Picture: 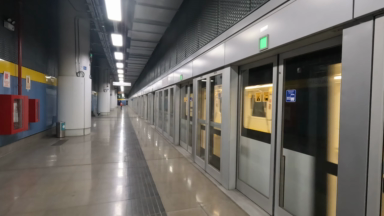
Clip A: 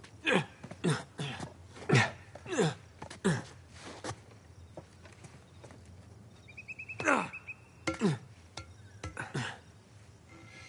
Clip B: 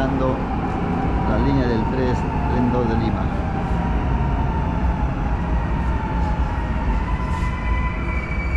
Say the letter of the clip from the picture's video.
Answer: B